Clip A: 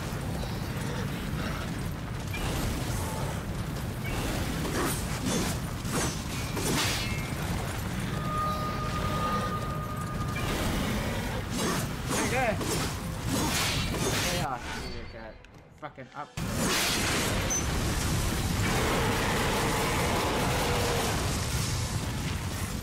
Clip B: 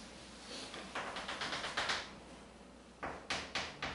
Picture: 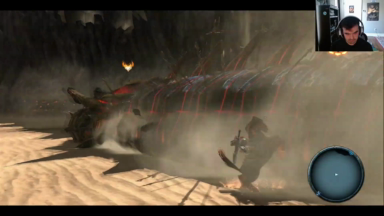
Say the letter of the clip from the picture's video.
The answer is A